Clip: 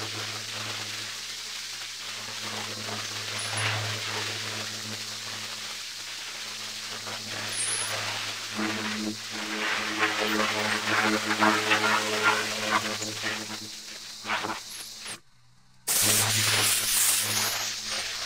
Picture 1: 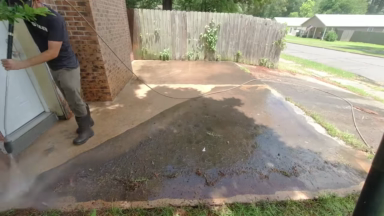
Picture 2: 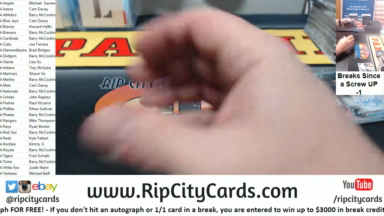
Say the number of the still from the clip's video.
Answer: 1